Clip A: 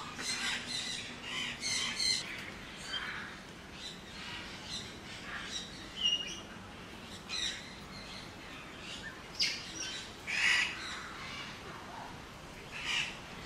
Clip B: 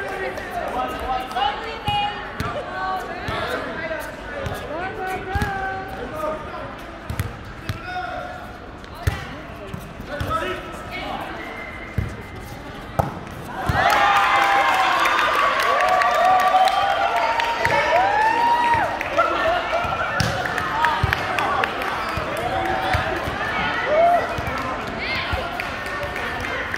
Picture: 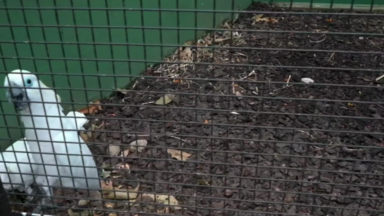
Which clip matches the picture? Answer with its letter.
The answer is A